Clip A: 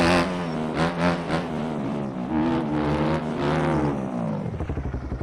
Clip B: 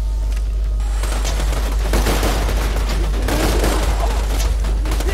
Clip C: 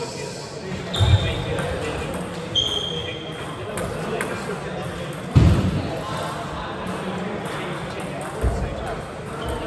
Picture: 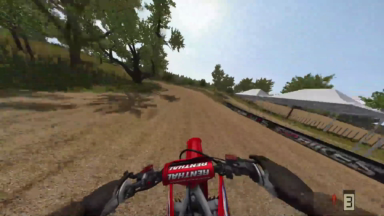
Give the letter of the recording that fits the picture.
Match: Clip A